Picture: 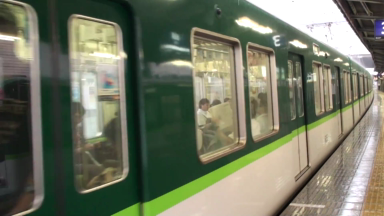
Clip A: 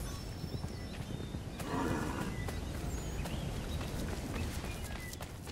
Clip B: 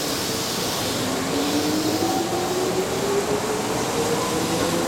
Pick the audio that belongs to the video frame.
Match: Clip B